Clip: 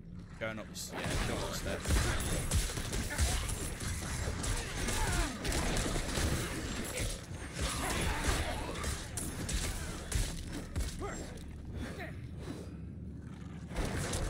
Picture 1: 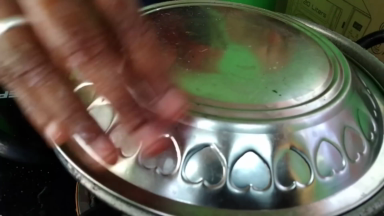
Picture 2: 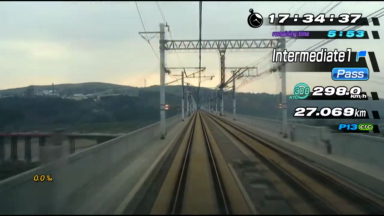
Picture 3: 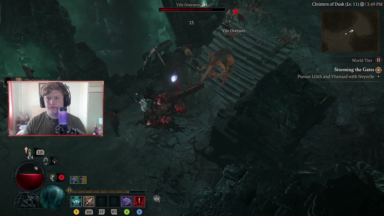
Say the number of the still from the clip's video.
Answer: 3